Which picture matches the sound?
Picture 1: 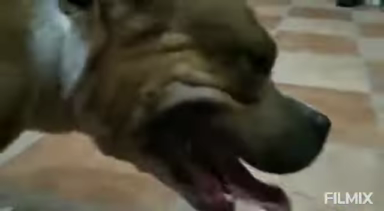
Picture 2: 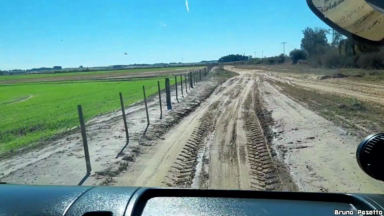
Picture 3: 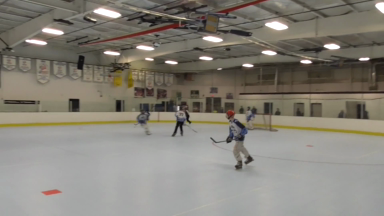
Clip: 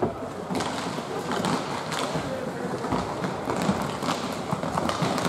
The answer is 3